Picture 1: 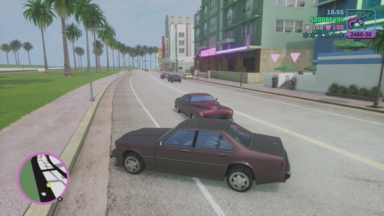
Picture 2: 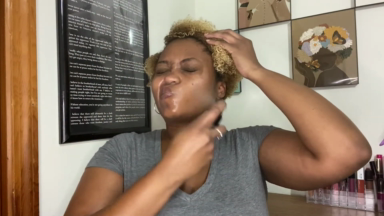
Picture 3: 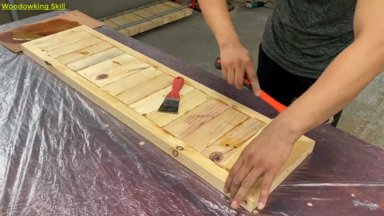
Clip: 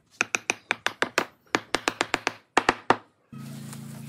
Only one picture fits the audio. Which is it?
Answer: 3